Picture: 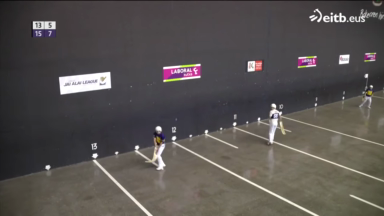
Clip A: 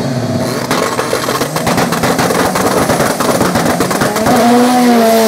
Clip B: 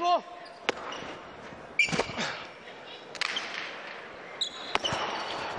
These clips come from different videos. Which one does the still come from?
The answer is B